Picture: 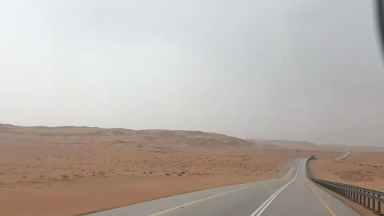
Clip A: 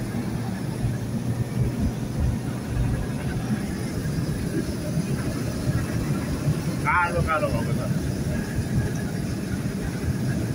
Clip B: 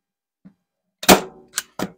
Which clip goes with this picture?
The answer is A